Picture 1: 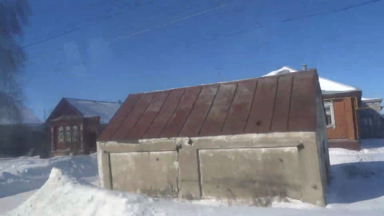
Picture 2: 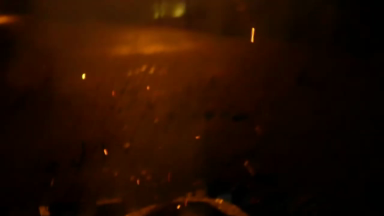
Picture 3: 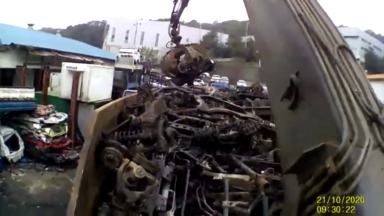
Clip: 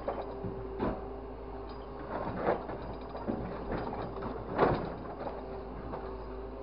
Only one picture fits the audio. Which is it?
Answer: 3